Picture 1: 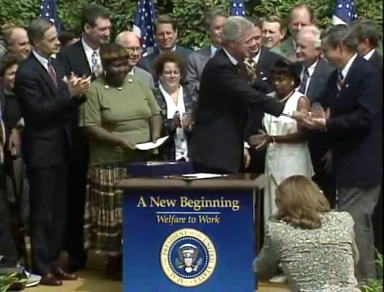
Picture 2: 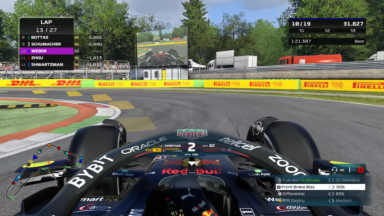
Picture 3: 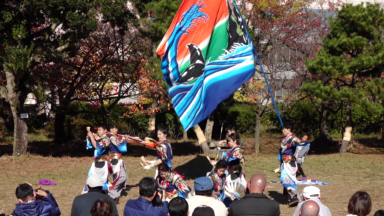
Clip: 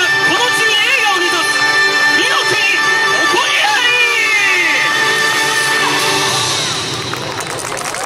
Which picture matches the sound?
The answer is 3